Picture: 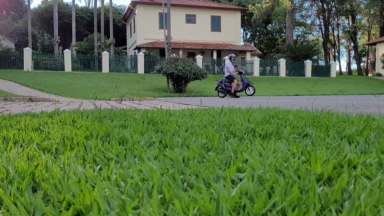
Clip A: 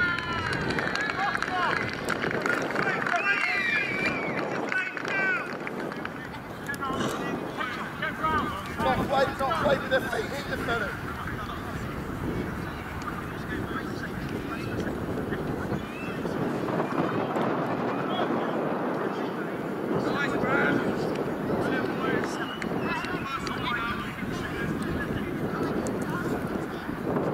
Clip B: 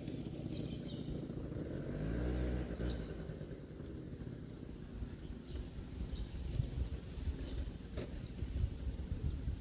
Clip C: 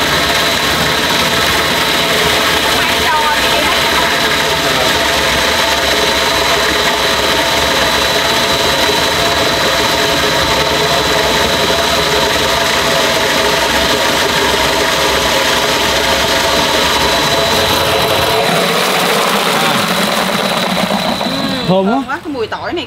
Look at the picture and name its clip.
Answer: B